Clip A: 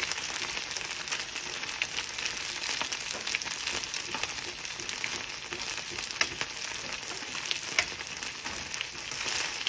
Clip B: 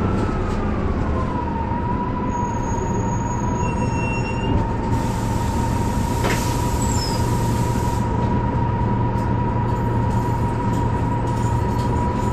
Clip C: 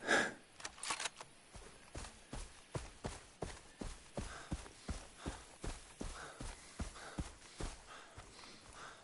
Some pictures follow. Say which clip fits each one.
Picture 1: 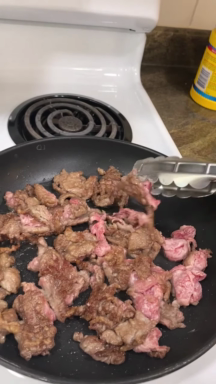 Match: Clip A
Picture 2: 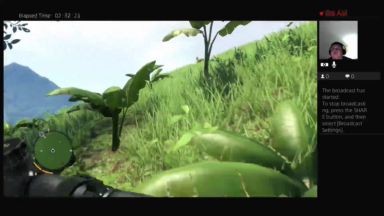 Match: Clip C